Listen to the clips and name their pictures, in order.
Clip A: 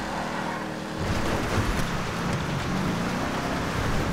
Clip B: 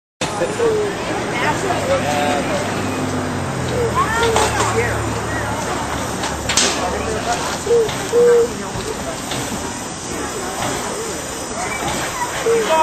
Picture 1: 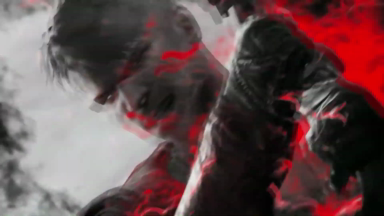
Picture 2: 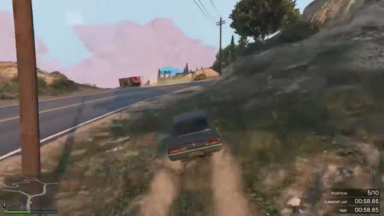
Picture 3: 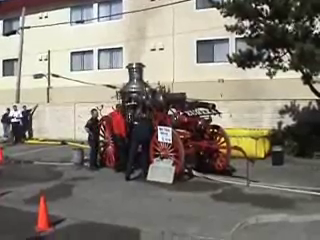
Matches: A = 2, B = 3